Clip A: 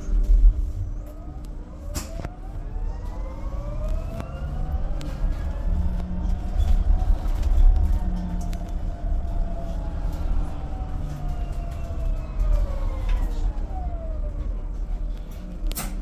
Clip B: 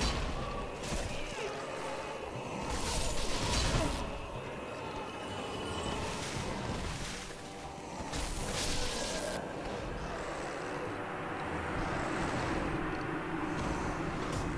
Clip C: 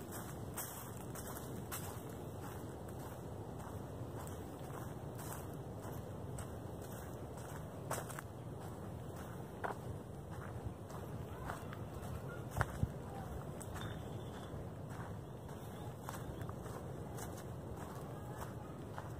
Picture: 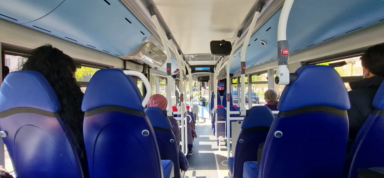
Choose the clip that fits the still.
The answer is A